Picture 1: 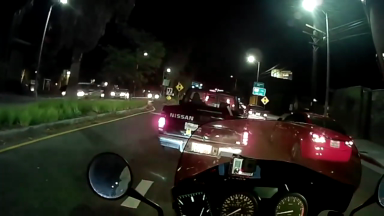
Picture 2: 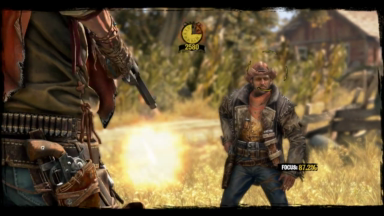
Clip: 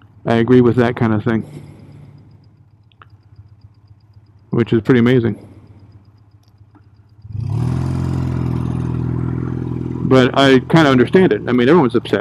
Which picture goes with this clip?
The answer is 1